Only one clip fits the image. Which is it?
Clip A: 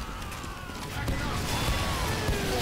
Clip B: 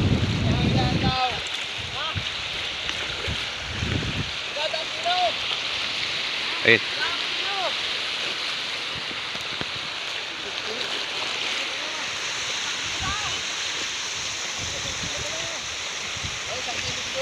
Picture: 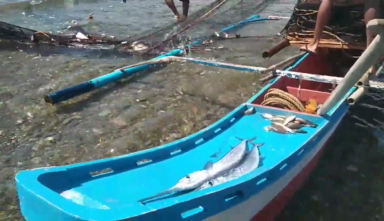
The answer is B